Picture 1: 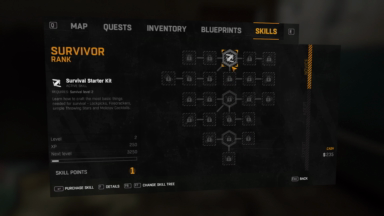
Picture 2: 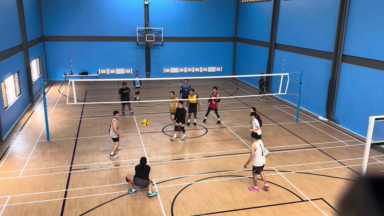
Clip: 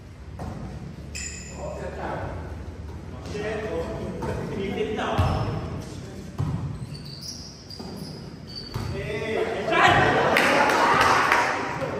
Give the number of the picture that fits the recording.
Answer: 2